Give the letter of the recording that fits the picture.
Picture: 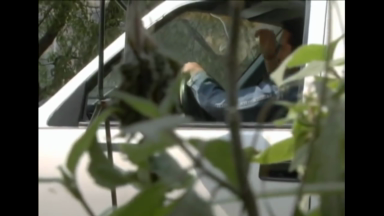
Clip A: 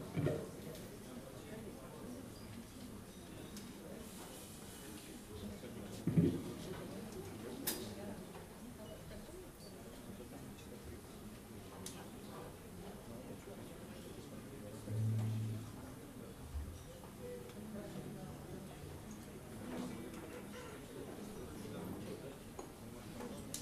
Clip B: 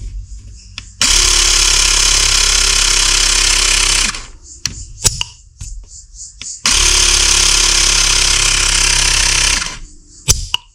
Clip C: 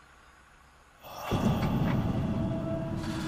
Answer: C